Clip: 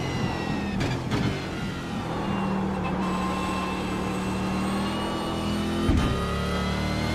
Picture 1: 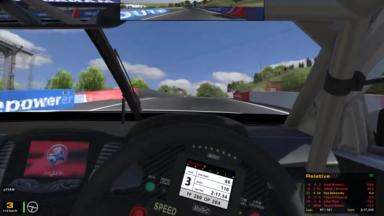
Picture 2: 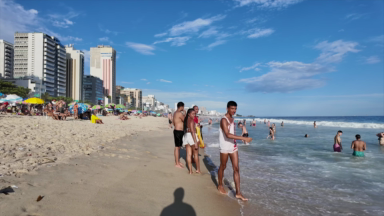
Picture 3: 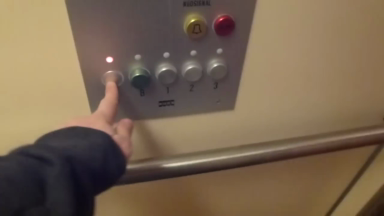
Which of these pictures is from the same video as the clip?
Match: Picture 1